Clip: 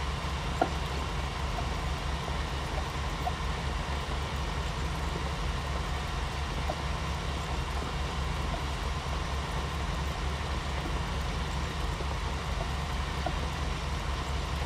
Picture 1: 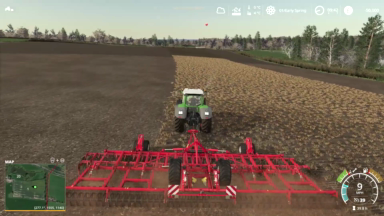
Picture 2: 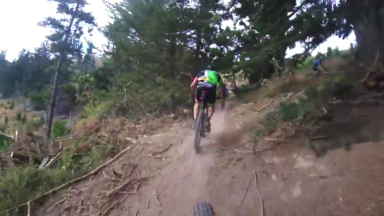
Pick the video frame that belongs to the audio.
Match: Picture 1